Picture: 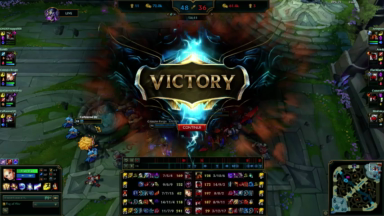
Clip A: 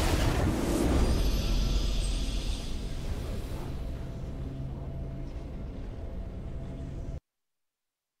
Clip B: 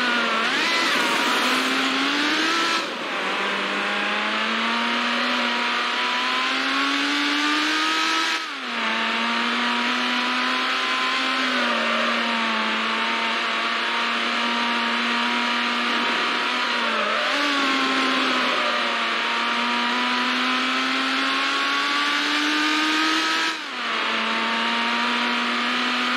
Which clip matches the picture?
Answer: A